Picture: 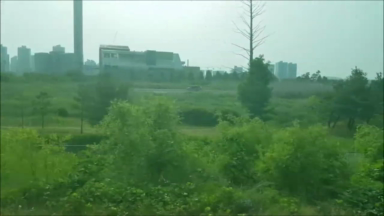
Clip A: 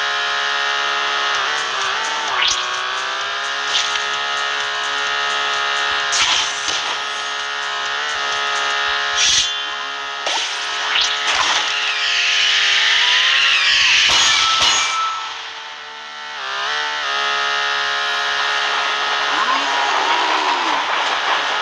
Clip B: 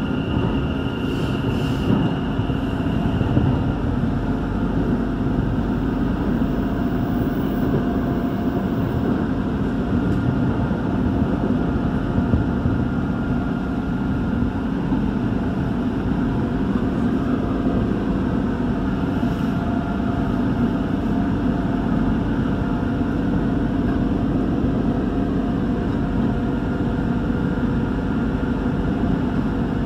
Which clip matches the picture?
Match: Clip B